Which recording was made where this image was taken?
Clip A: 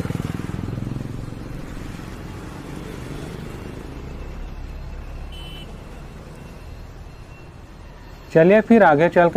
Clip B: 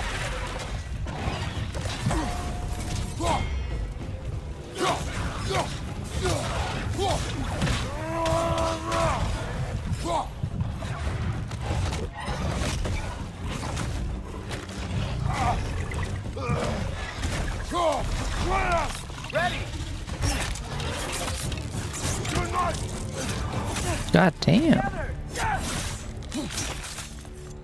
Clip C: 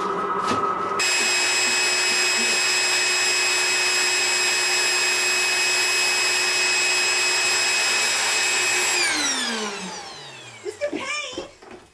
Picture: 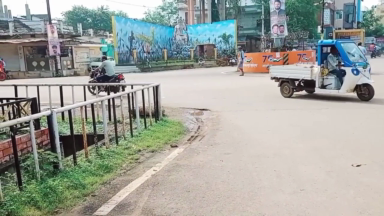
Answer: A